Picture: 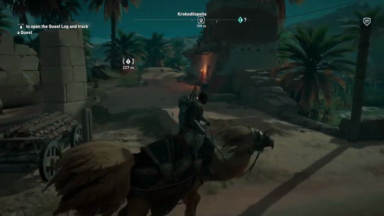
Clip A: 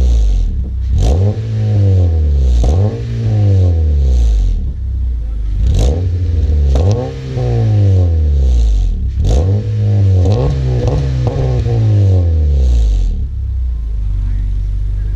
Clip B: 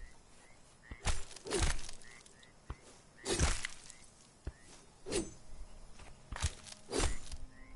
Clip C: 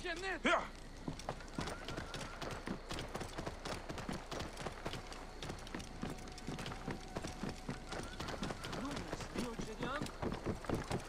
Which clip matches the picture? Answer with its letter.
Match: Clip C